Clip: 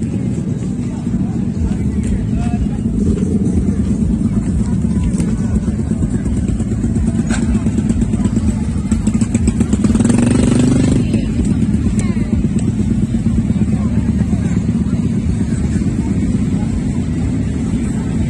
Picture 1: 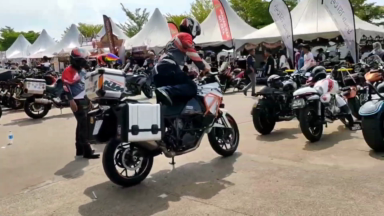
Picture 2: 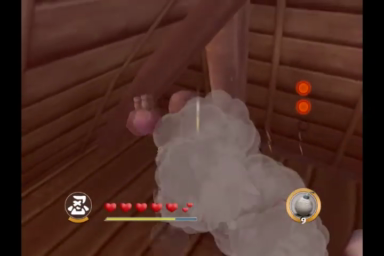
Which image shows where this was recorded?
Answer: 1